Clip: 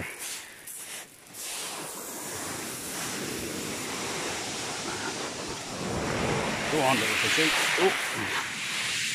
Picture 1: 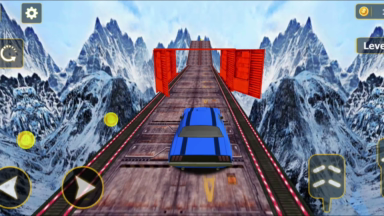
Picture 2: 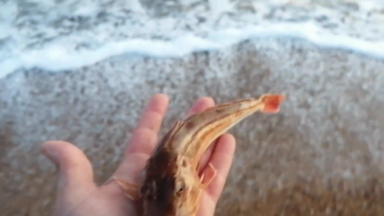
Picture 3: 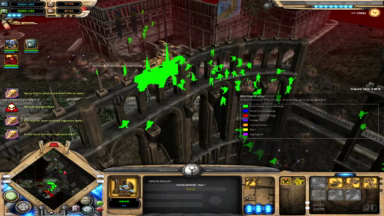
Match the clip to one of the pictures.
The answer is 2